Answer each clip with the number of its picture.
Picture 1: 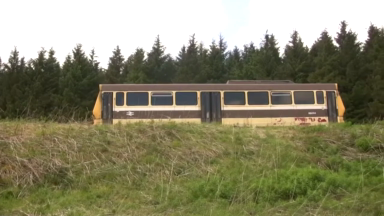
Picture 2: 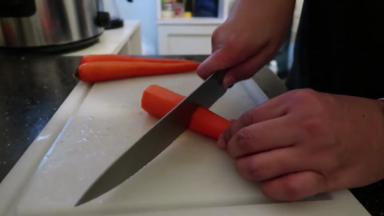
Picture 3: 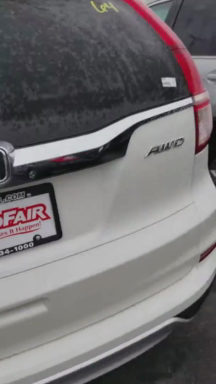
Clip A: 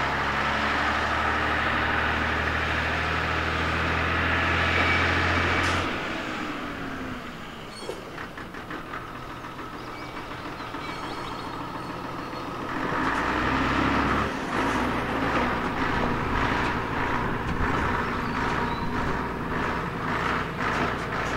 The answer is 1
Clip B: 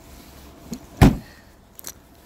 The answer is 3